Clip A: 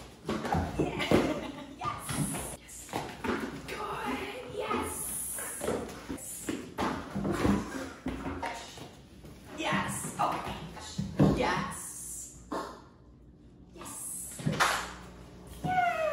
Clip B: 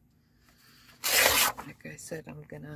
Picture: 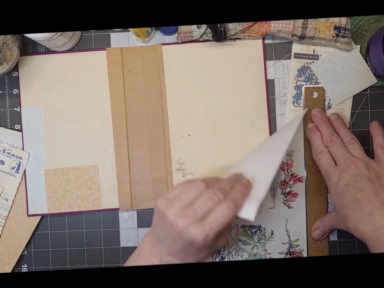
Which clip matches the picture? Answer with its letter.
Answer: B